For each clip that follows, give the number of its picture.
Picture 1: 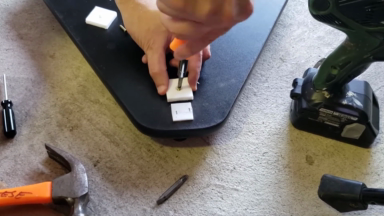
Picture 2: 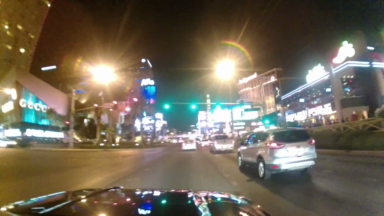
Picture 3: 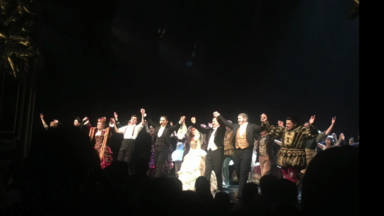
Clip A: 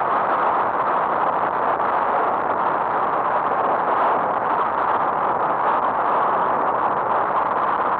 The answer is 2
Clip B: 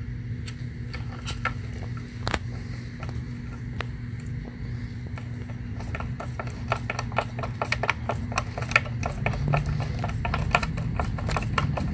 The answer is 1